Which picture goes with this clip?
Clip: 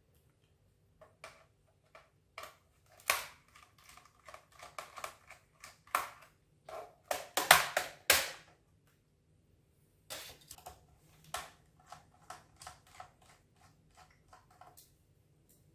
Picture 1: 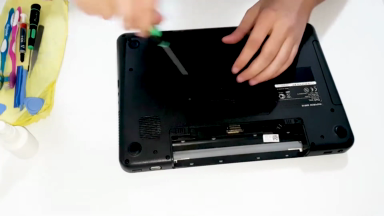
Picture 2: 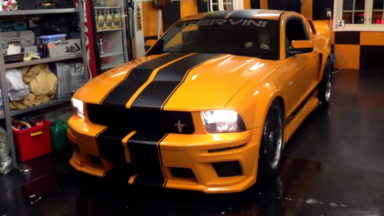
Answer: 1